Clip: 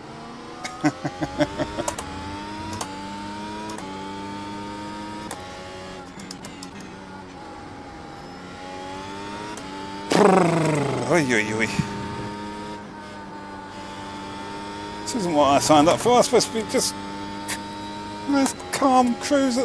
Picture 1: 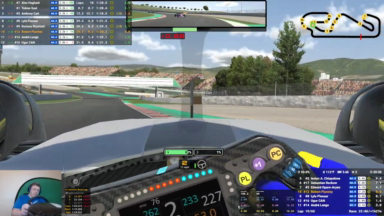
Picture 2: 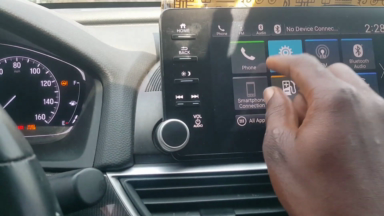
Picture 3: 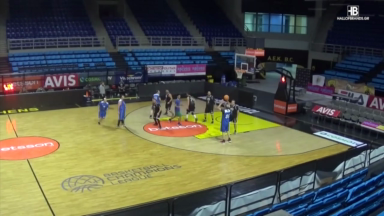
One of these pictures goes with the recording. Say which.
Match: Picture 1